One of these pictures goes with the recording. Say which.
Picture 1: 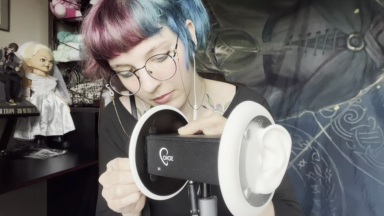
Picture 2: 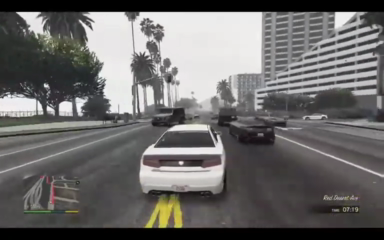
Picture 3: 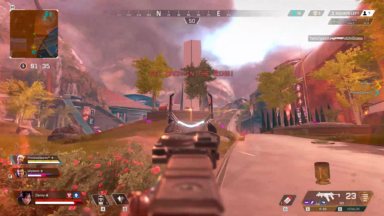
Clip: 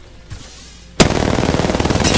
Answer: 3